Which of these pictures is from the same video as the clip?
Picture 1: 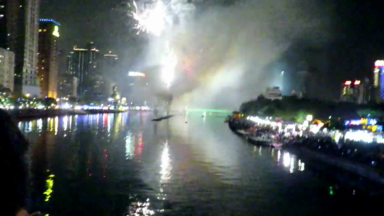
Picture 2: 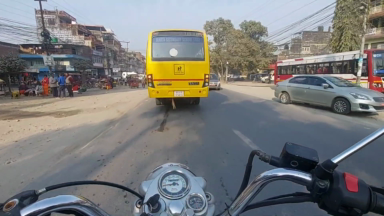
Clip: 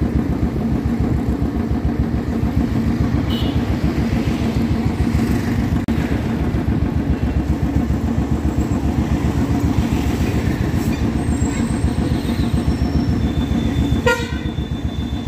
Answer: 2